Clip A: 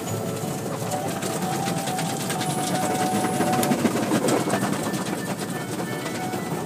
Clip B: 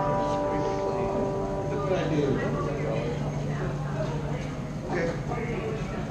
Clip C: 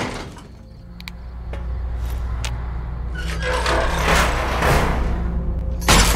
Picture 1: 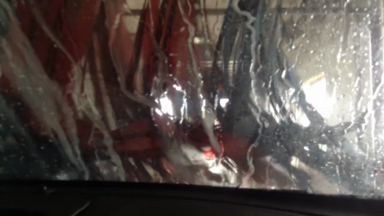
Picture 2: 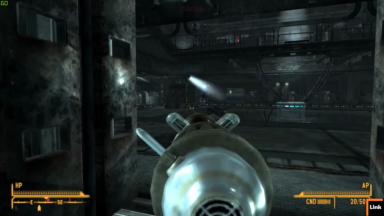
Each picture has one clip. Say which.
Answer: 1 A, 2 C